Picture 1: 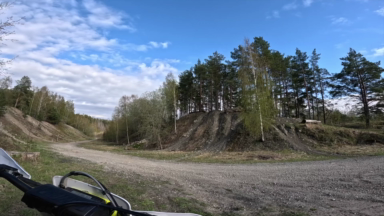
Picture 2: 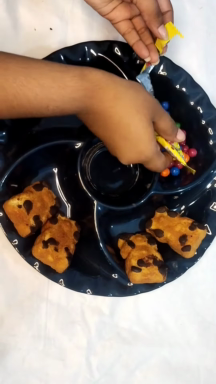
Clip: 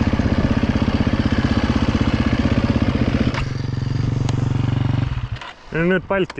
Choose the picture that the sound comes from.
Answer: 1